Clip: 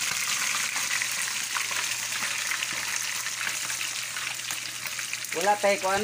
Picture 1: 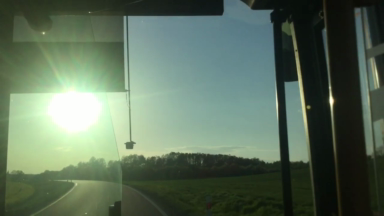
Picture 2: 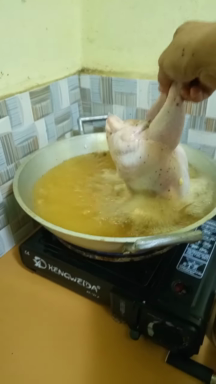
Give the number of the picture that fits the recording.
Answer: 2